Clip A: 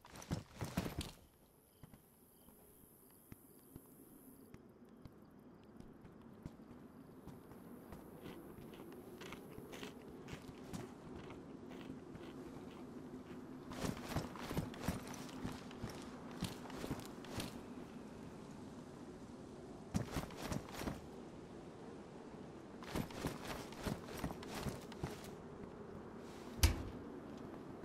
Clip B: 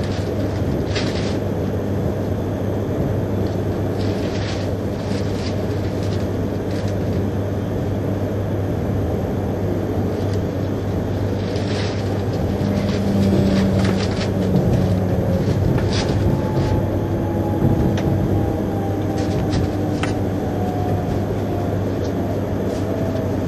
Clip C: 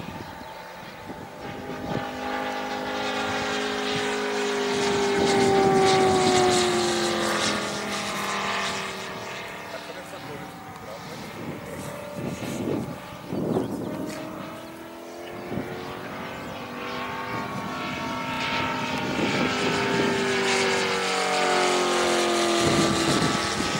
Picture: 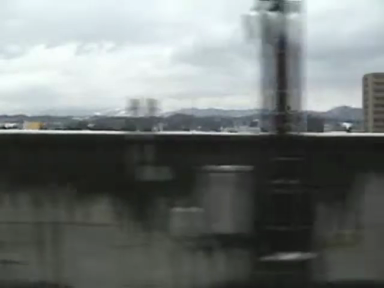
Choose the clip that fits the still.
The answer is B